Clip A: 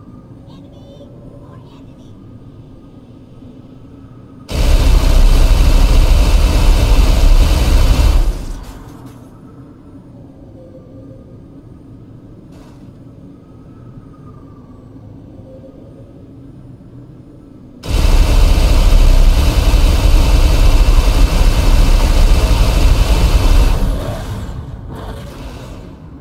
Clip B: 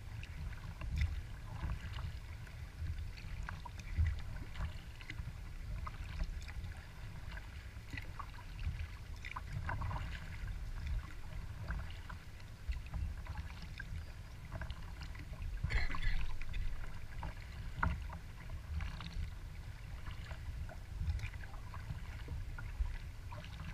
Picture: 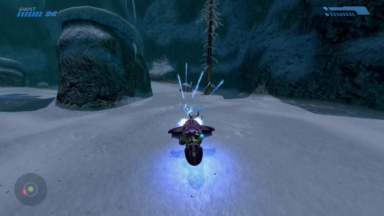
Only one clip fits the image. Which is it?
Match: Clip A